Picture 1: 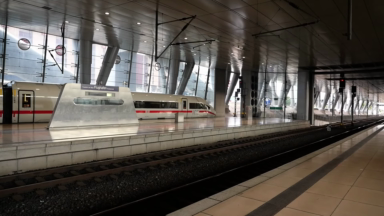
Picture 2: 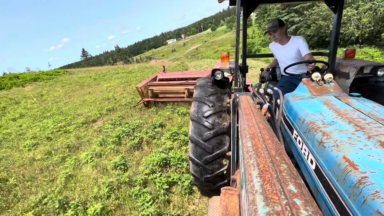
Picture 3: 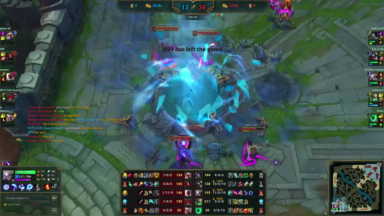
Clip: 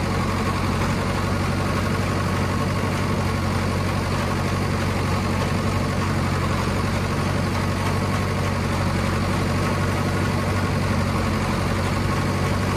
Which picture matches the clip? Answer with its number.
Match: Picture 2